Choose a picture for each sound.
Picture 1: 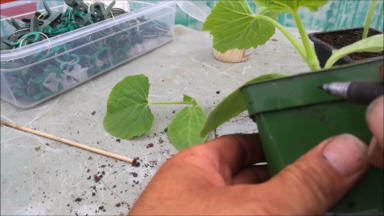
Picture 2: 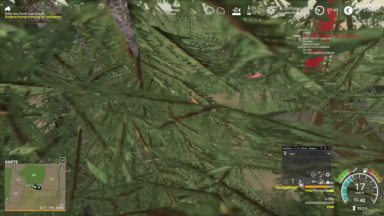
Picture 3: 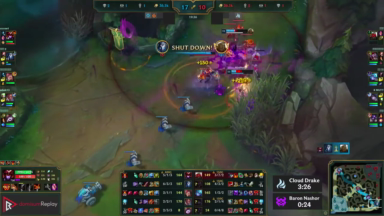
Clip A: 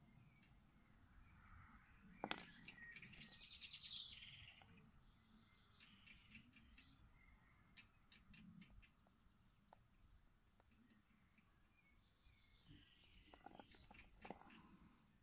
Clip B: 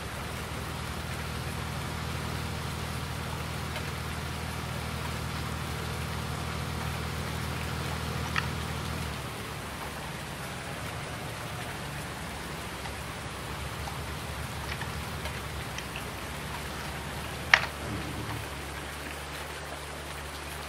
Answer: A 1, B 2